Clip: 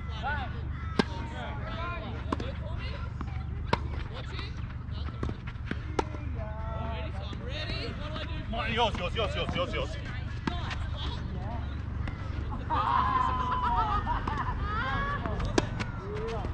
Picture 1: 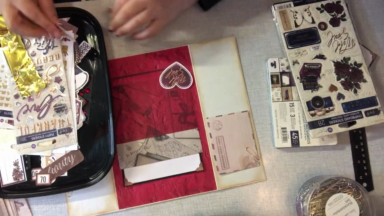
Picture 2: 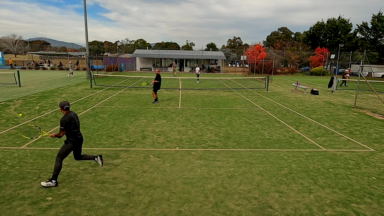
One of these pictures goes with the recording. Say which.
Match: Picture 2